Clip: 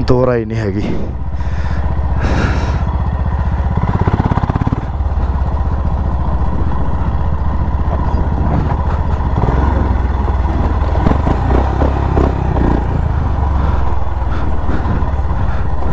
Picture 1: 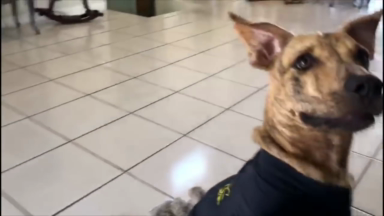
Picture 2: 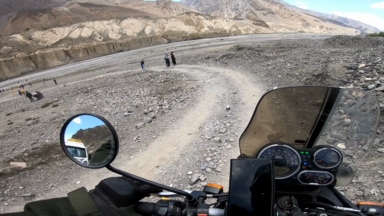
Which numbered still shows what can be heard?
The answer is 2